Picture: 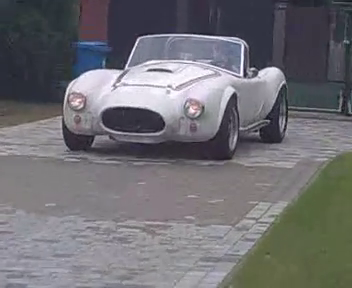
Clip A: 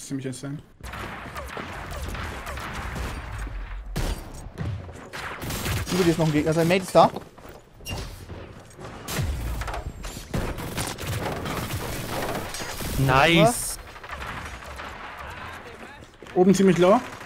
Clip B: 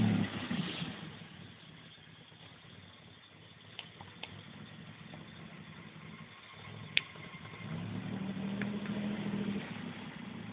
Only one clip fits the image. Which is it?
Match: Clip B